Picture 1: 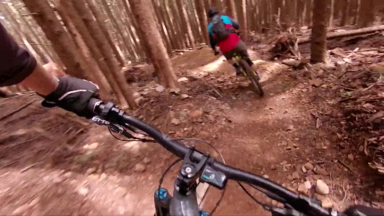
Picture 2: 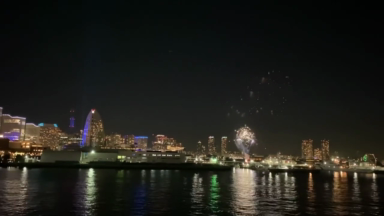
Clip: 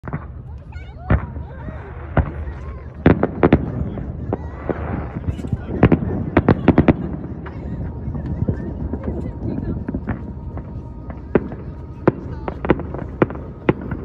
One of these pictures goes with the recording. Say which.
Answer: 2